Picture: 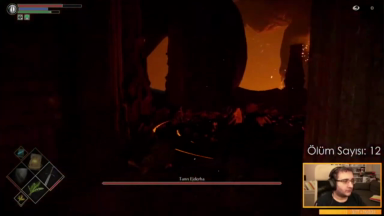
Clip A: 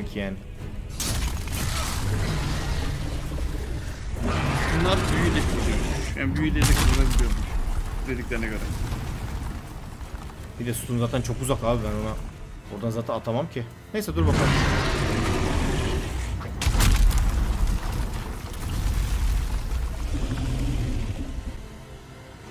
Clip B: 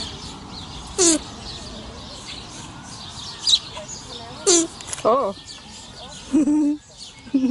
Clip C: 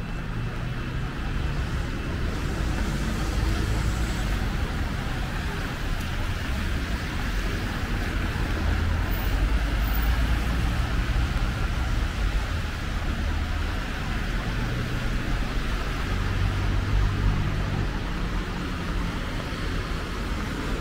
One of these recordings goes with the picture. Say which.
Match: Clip A